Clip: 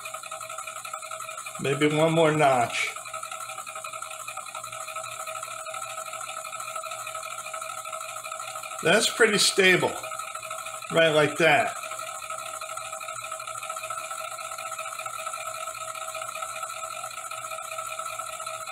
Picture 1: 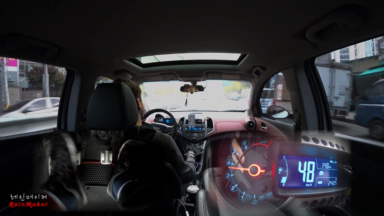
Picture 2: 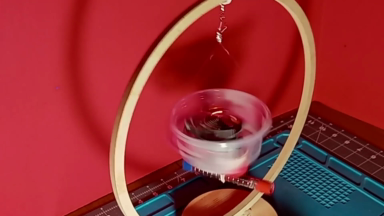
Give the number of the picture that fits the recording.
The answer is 2